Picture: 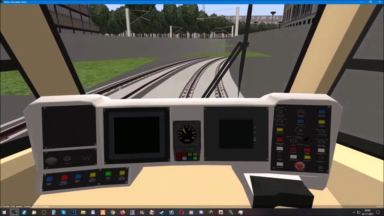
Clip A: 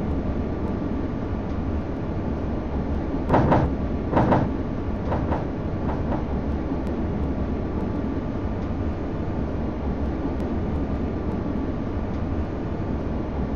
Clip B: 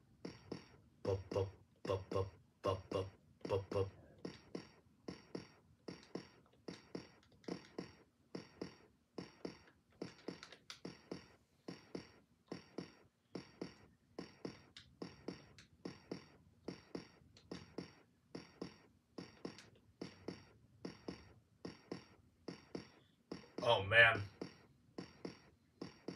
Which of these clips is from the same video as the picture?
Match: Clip A